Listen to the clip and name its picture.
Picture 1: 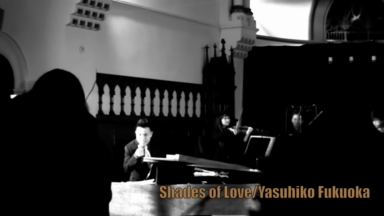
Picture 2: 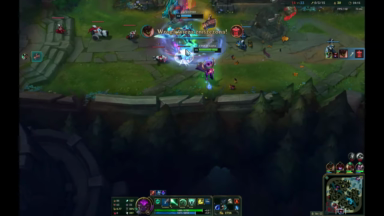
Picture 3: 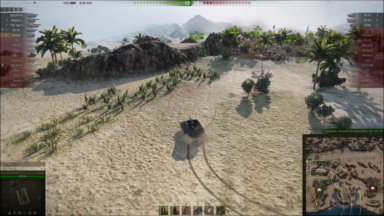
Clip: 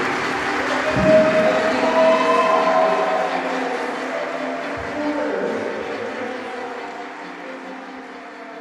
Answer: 1